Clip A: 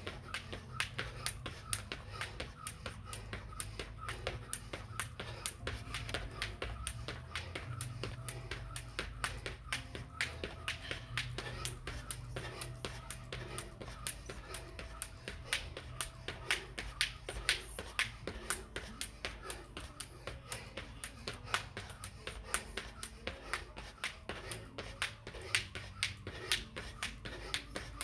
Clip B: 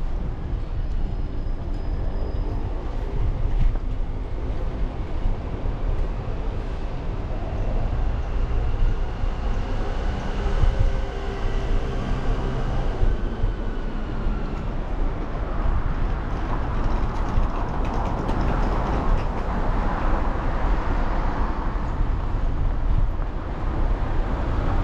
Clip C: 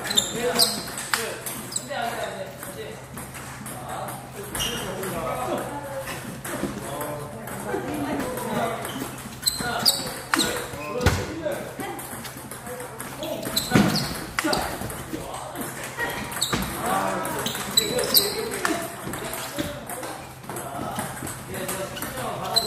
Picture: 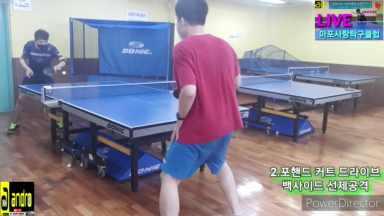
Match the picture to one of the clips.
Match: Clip C